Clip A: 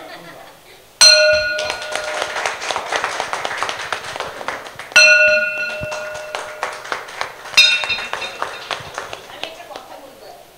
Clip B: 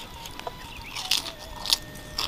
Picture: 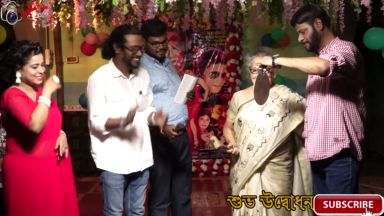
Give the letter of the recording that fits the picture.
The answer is A